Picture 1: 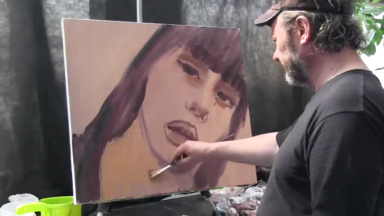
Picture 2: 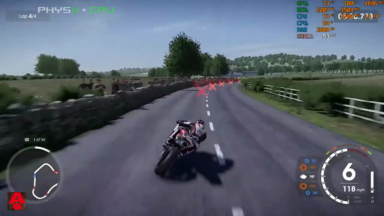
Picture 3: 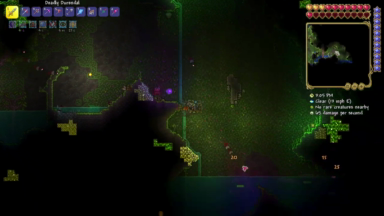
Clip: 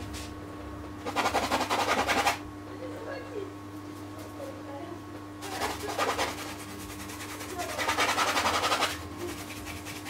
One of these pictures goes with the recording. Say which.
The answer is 1